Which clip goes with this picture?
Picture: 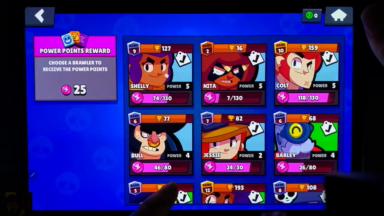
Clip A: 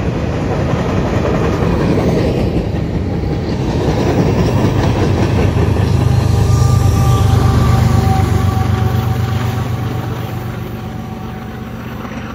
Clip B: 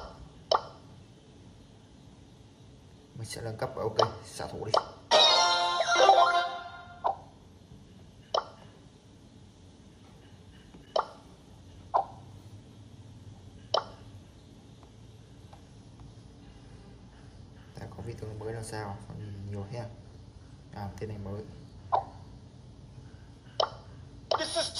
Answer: B